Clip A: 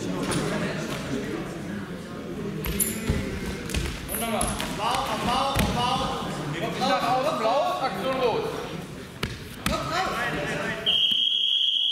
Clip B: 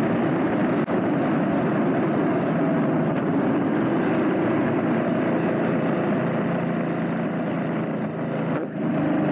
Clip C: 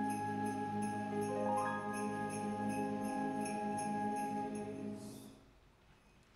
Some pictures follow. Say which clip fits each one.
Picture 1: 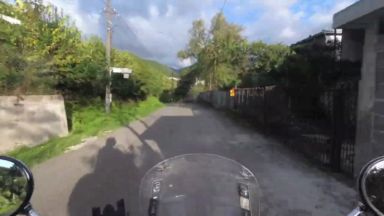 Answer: B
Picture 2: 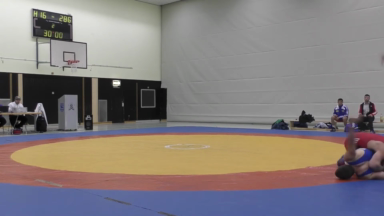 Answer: A